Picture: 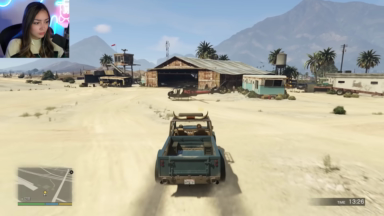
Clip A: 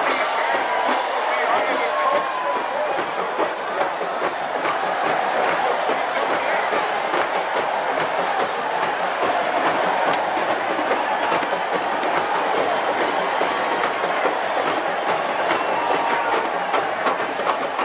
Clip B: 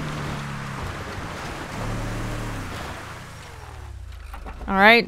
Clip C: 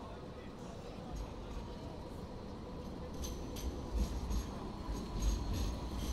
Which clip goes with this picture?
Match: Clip B